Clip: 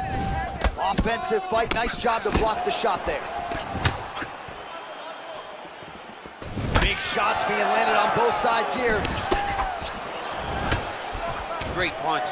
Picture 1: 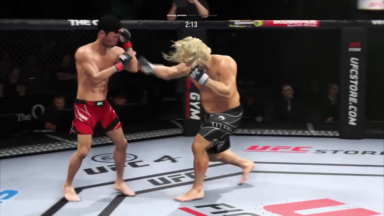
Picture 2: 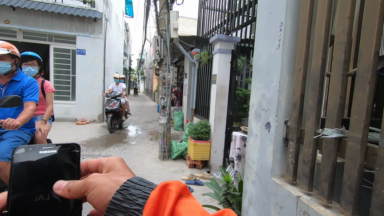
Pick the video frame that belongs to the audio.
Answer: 1